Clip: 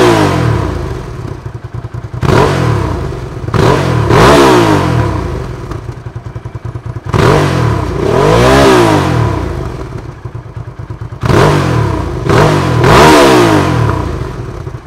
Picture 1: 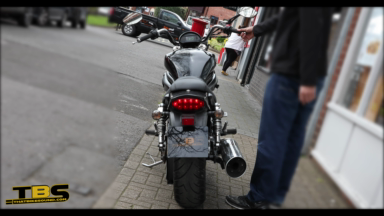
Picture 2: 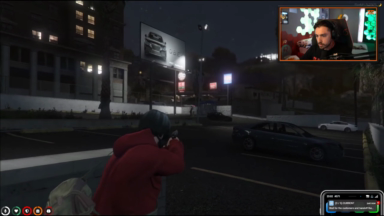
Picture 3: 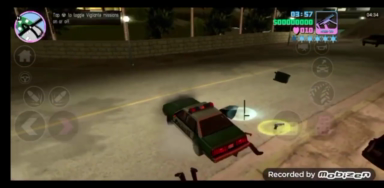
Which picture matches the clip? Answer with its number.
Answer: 1